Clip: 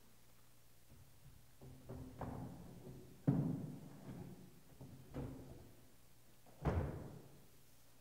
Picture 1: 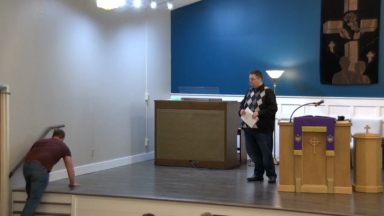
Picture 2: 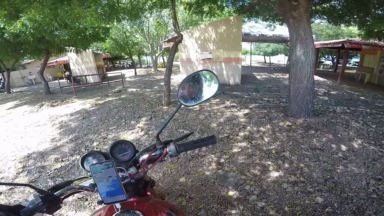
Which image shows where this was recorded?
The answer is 1